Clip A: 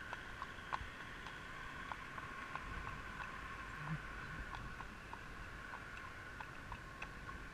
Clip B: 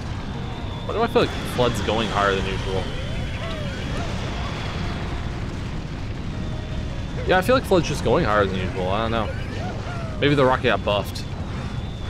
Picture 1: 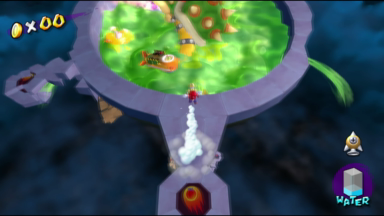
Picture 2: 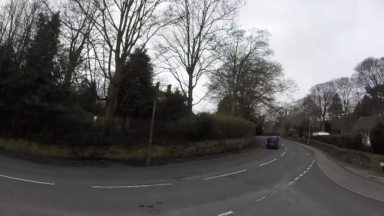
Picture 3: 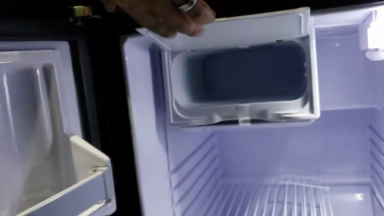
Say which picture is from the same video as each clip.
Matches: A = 2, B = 1